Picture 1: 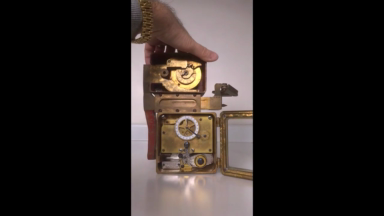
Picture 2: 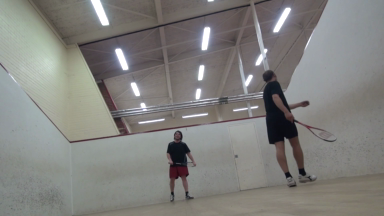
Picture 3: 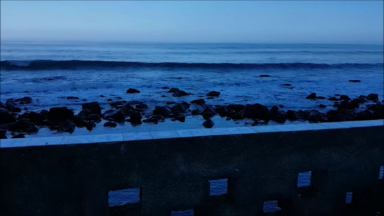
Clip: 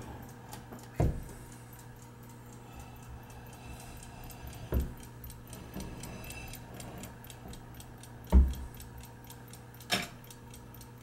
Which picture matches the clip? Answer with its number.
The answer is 1